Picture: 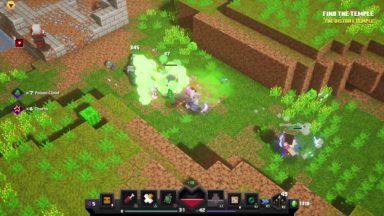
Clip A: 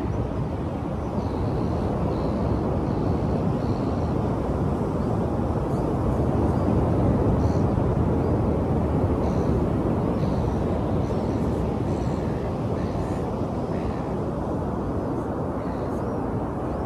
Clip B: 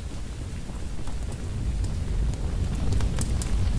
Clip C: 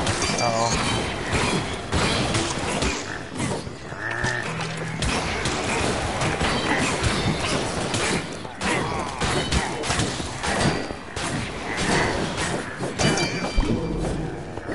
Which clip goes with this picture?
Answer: C